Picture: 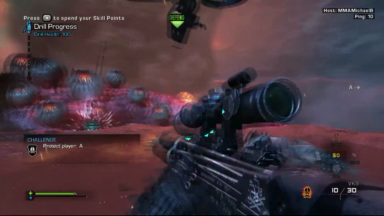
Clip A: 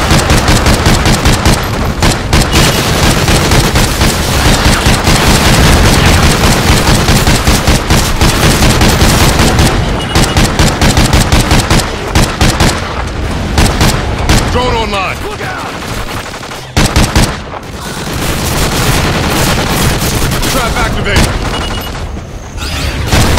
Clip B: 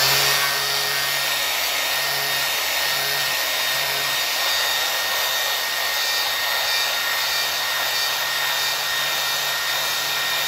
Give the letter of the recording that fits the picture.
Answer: A